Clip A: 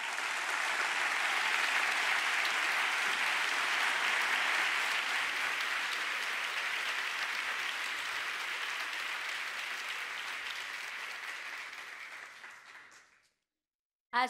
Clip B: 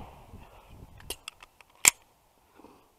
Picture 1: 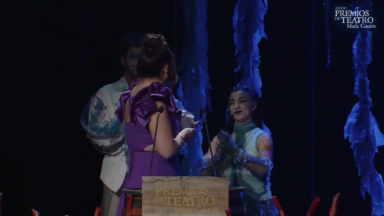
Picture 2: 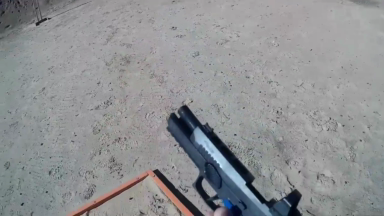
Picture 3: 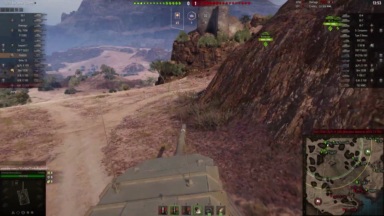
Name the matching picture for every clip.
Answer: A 1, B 2